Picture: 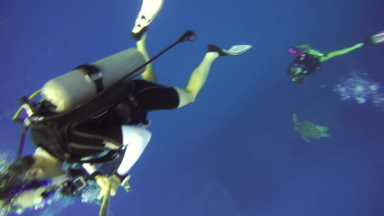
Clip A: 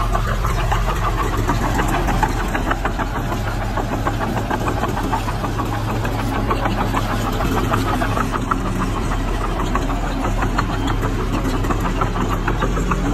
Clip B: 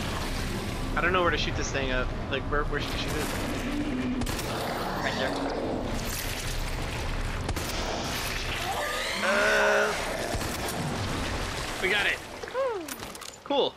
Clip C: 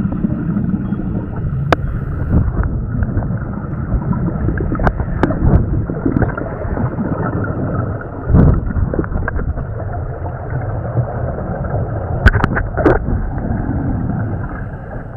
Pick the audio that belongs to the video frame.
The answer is C